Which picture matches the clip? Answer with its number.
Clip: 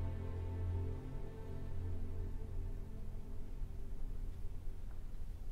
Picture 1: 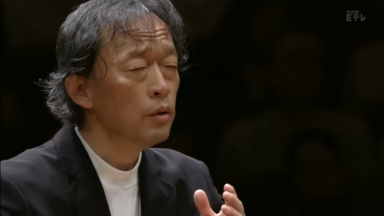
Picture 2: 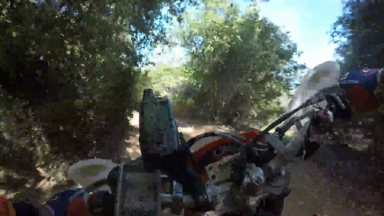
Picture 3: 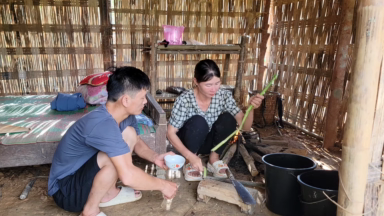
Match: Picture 1